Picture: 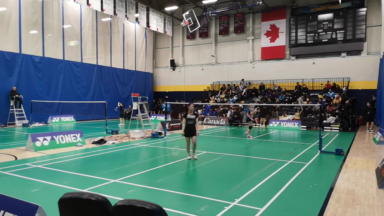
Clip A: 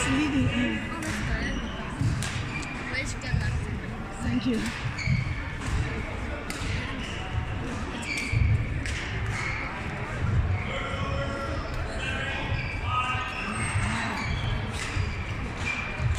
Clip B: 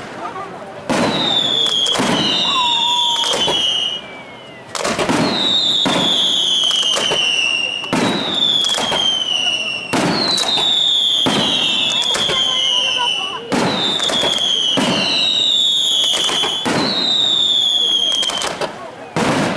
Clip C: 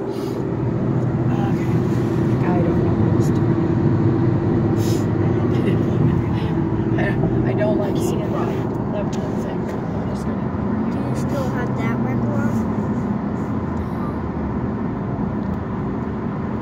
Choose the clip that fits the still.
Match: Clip A